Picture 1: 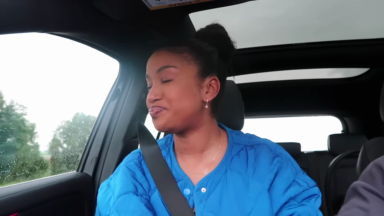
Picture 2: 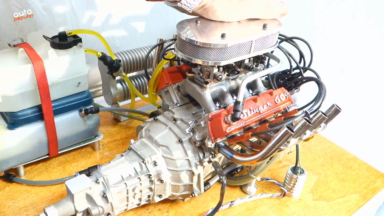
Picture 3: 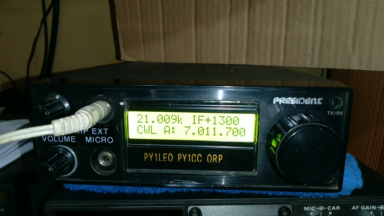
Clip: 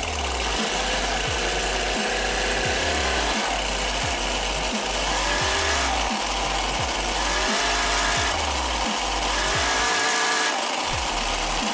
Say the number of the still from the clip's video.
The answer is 2